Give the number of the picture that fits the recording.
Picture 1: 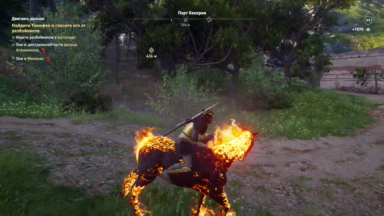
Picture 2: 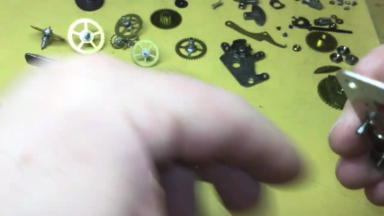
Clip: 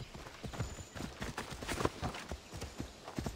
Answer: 1